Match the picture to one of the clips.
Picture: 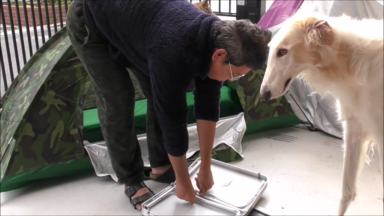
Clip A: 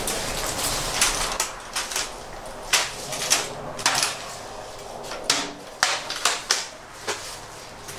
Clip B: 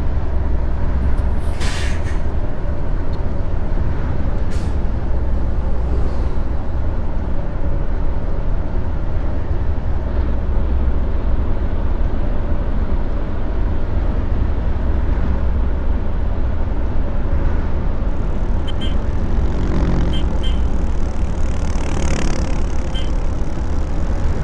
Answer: A